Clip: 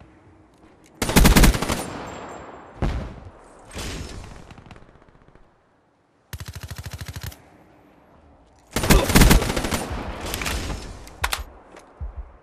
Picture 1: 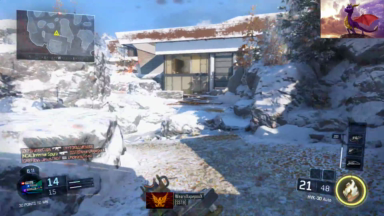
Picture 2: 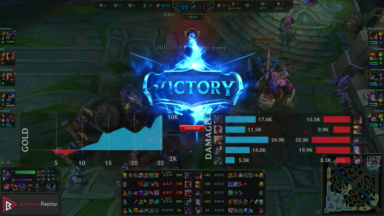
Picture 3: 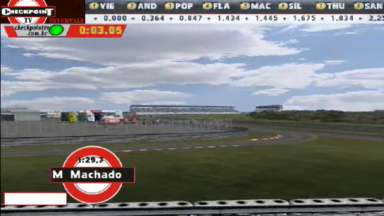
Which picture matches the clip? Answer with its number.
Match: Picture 1